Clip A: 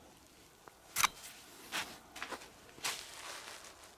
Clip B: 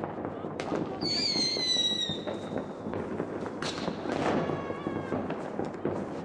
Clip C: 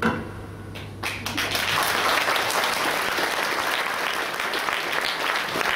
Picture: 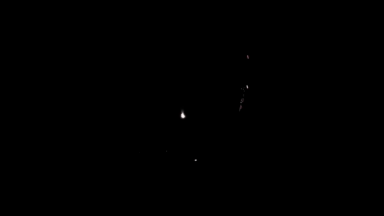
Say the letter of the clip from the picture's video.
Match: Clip B